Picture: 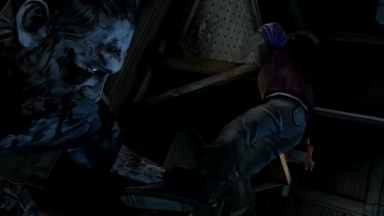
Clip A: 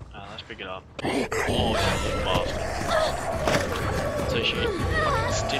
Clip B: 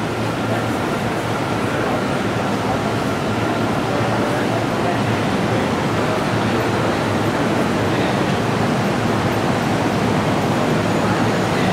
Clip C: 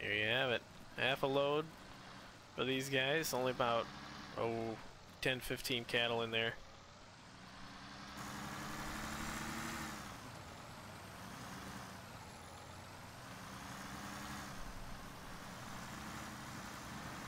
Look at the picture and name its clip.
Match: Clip A